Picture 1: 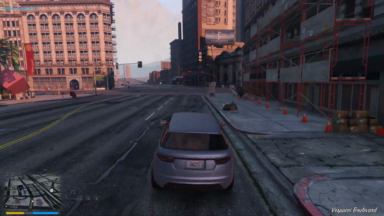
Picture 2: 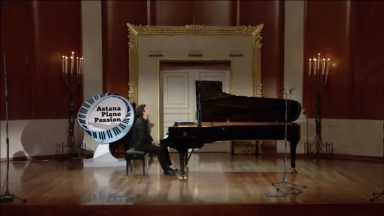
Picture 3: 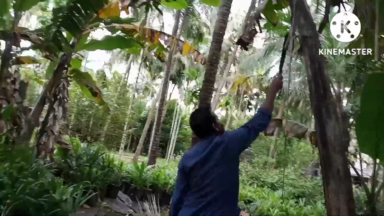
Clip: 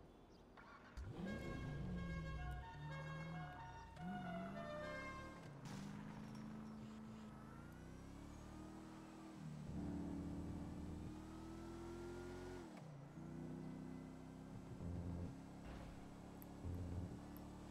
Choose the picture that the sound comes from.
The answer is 1